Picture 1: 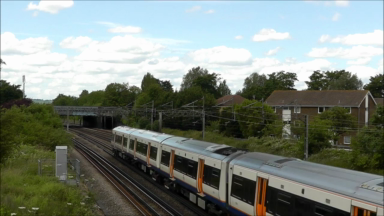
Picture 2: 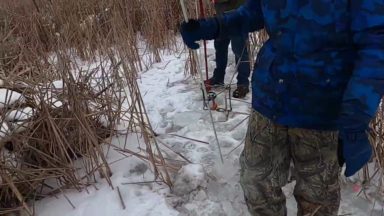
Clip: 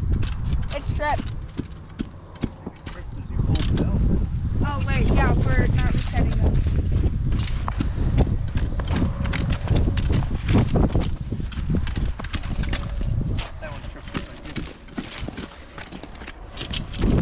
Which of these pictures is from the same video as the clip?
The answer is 2